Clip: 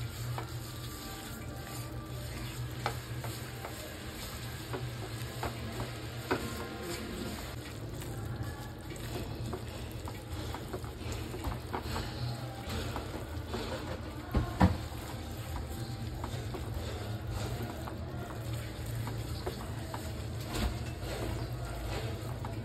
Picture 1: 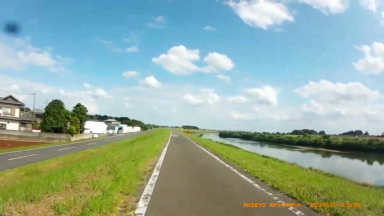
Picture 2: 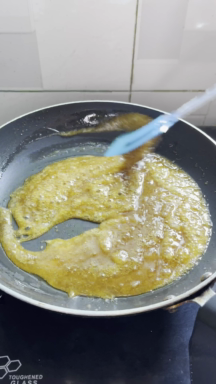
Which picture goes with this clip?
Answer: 2